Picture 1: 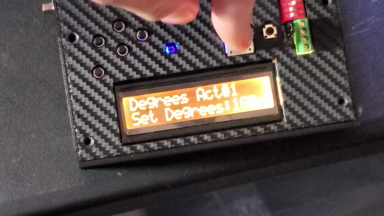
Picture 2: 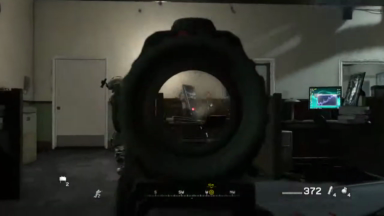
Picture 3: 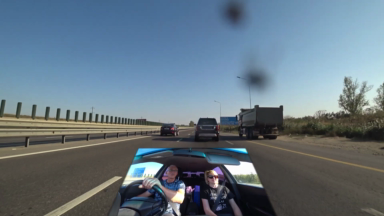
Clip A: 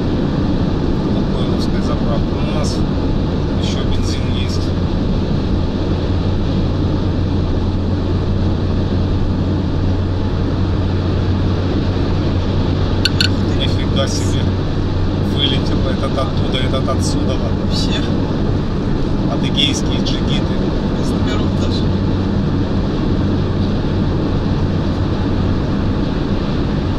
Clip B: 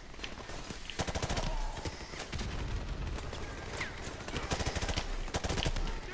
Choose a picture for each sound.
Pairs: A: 3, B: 2